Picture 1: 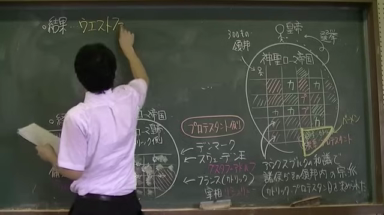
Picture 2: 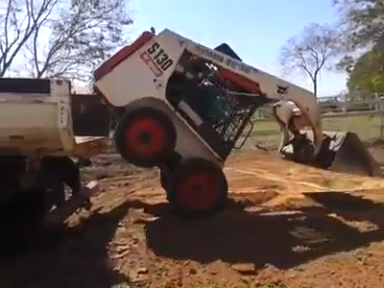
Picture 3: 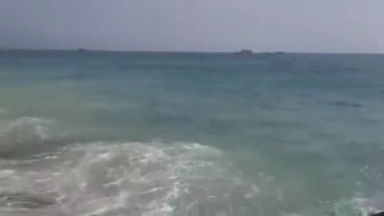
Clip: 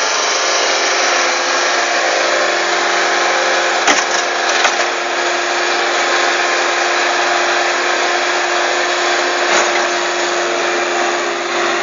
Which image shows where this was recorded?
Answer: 2